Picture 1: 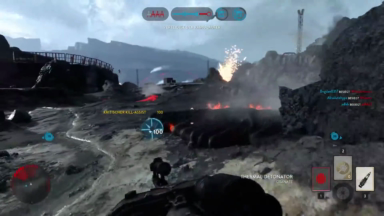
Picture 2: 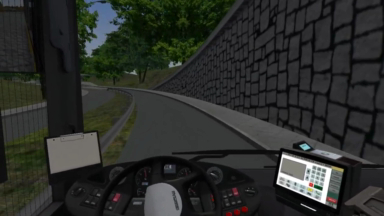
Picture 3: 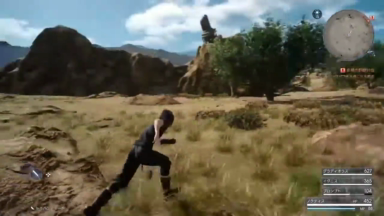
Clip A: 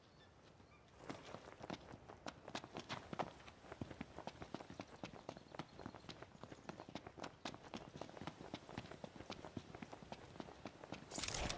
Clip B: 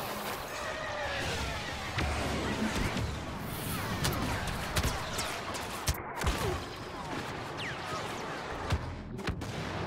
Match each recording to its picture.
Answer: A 3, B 1